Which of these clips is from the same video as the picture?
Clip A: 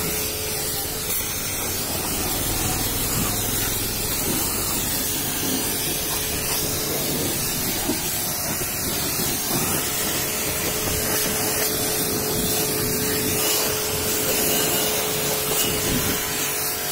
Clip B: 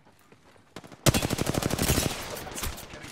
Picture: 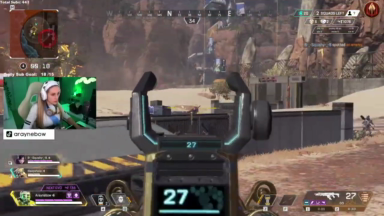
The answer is B